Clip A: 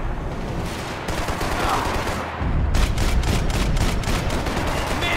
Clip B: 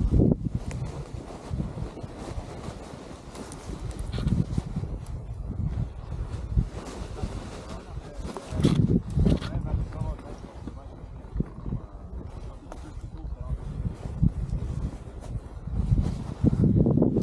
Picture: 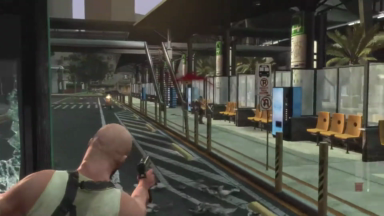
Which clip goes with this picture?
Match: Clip A